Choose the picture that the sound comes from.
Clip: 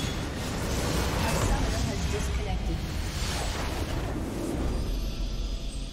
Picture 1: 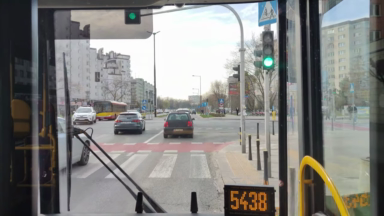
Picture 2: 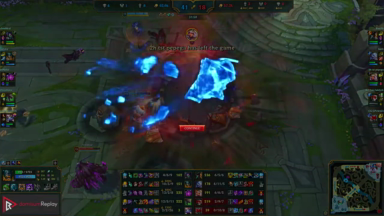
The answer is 2